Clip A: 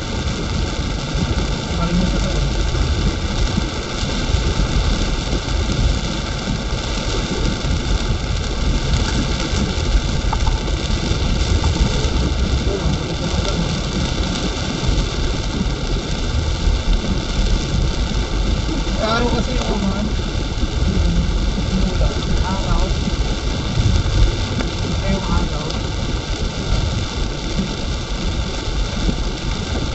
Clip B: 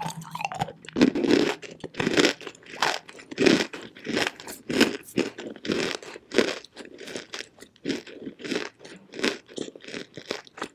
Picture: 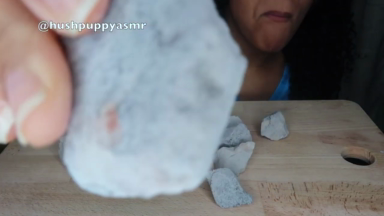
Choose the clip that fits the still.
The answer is B